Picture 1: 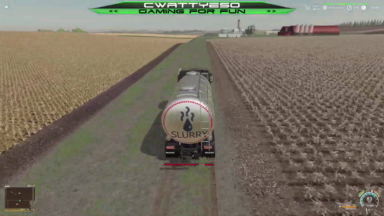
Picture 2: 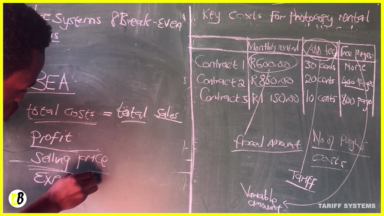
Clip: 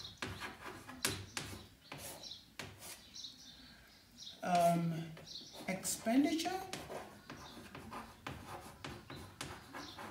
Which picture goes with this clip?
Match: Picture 2